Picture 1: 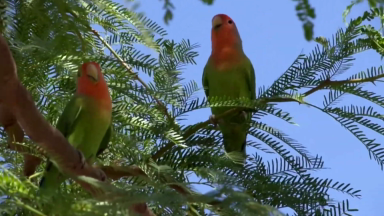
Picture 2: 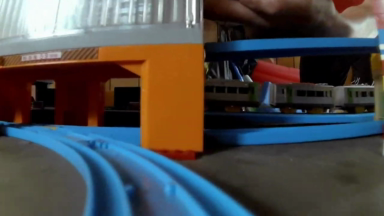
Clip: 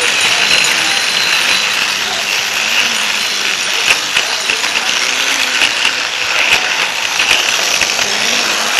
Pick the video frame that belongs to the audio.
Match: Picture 2